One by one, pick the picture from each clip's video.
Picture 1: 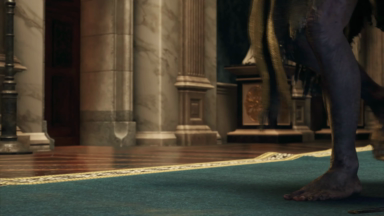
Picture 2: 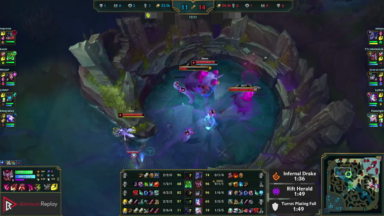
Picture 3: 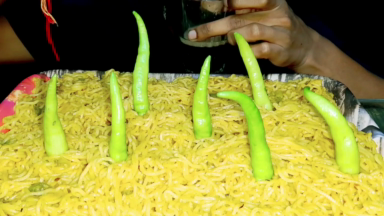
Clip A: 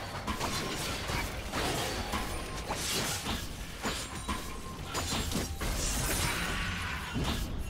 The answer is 2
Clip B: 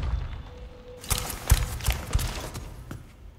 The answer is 1